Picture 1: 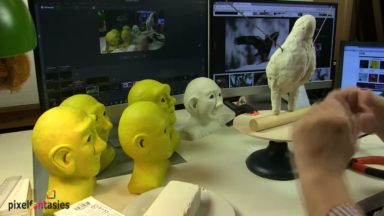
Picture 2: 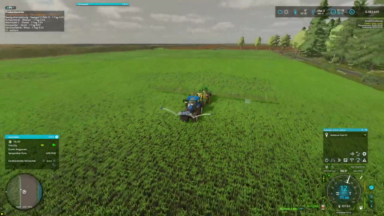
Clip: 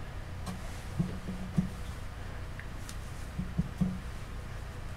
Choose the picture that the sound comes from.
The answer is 1